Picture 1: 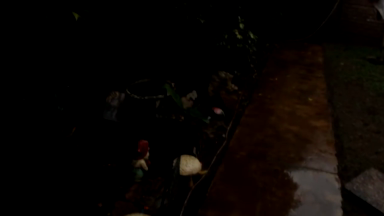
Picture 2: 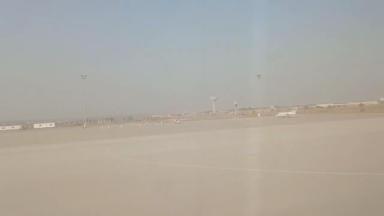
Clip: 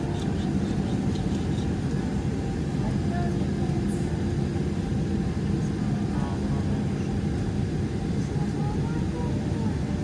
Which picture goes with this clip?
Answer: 2